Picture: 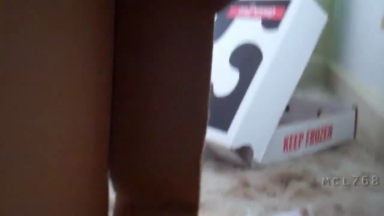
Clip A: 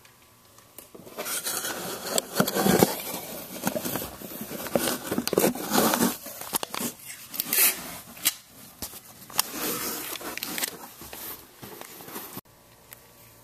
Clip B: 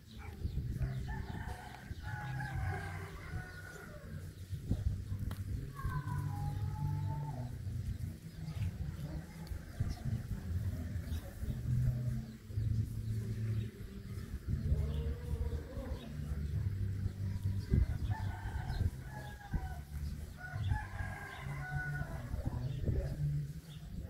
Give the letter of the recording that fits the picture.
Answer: A